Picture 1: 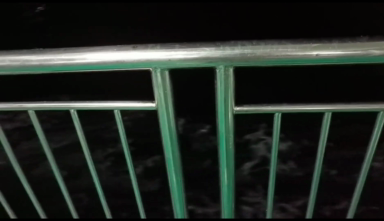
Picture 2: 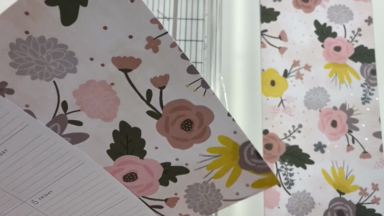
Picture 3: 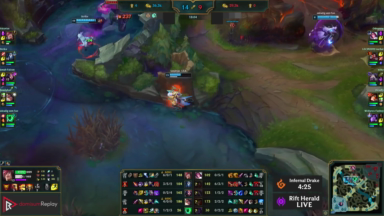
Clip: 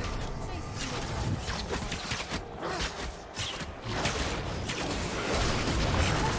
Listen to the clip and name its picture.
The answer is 3